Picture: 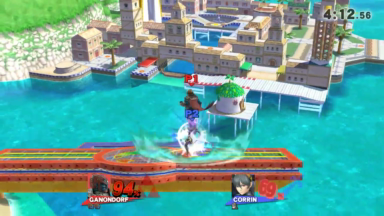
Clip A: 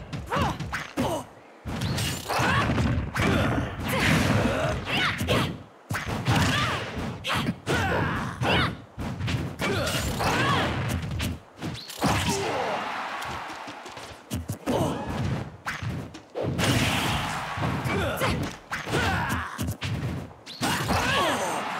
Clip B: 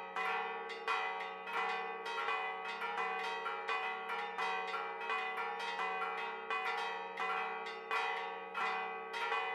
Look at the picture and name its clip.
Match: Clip A